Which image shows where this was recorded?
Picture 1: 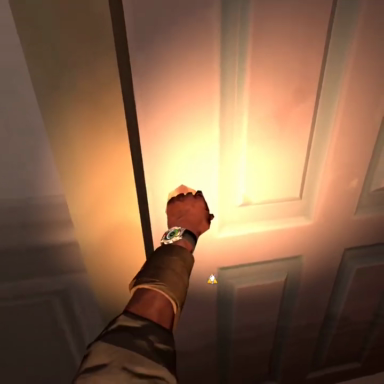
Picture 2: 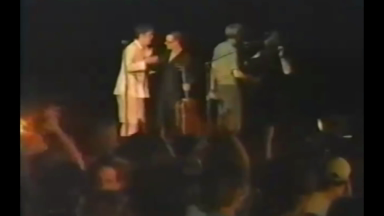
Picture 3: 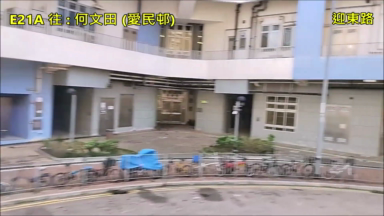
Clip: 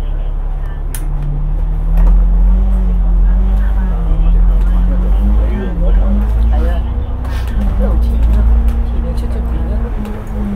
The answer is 3